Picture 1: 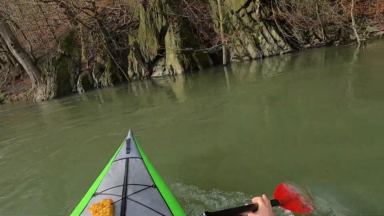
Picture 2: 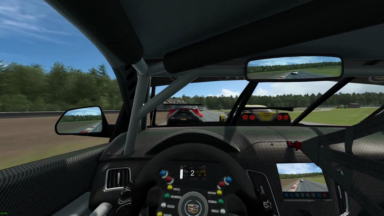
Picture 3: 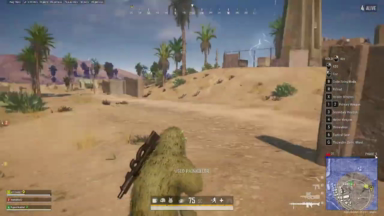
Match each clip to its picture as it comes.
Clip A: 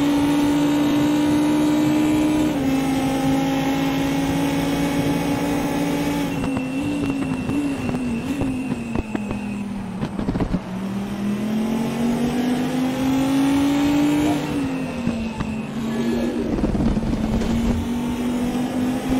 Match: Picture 2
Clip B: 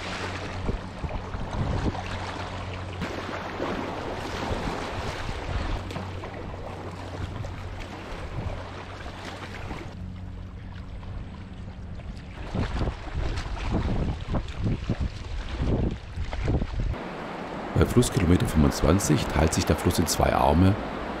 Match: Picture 1